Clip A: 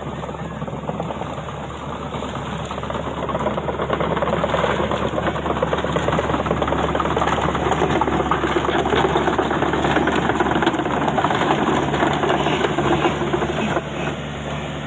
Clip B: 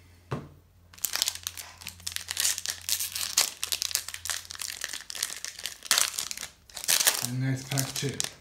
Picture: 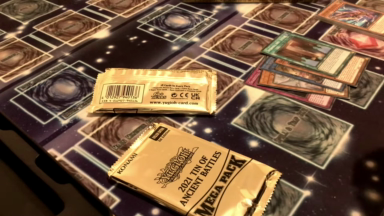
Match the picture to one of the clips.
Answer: B